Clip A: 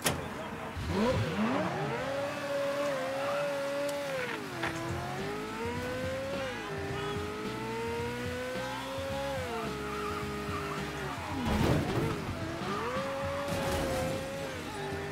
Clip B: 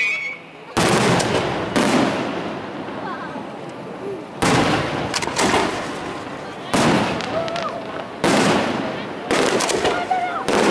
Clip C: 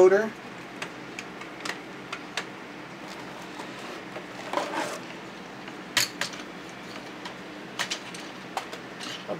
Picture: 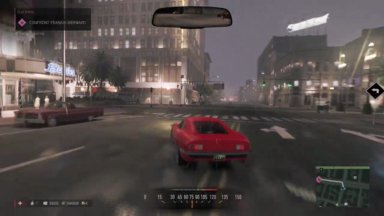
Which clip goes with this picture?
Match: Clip A